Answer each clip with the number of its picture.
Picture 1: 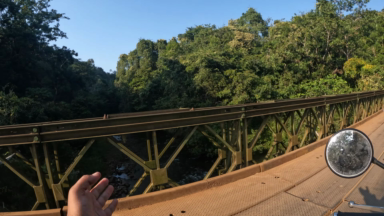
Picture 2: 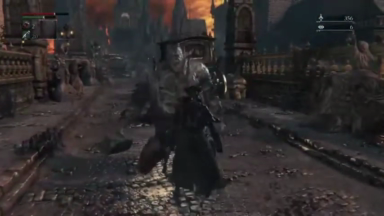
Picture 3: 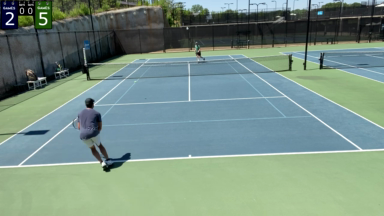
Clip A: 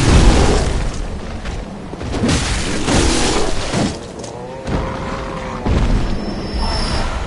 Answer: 2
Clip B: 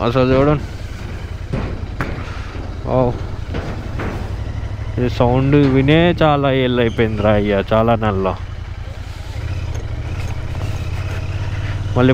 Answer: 1